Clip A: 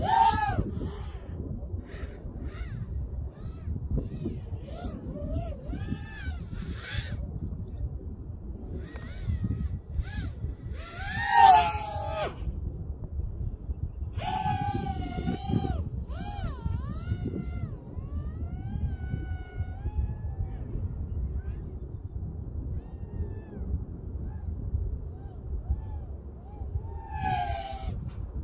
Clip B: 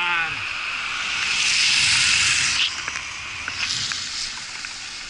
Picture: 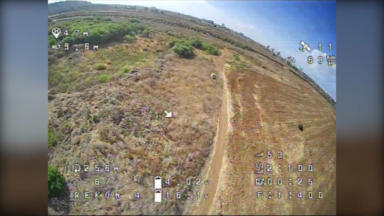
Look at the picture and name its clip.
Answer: A